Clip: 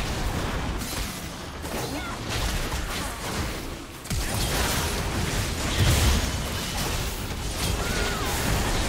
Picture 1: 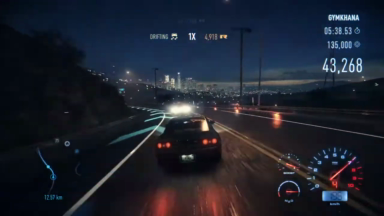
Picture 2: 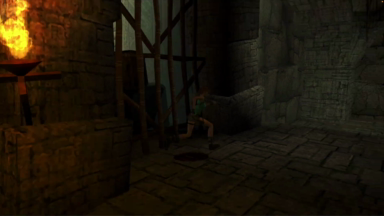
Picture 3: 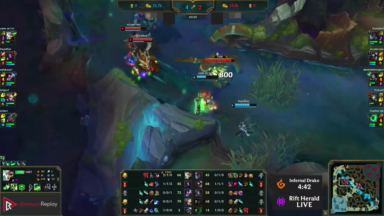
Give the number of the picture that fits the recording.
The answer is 3